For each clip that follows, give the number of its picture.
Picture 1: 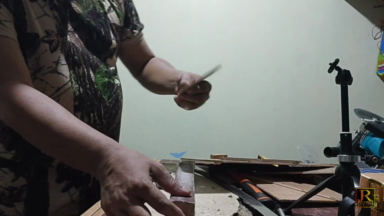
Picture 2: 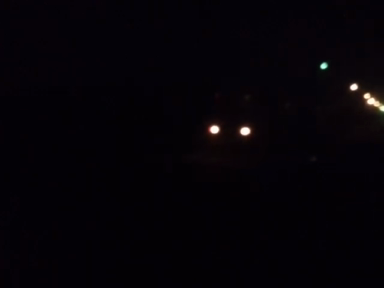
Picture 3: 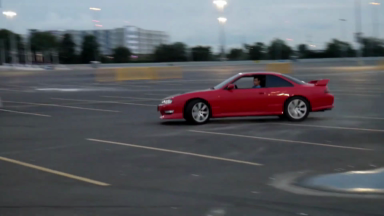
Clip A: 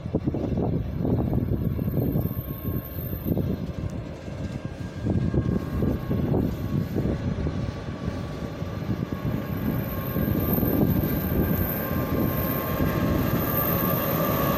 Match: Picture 2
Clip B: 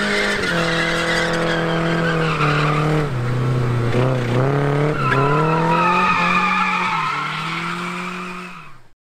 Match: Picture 3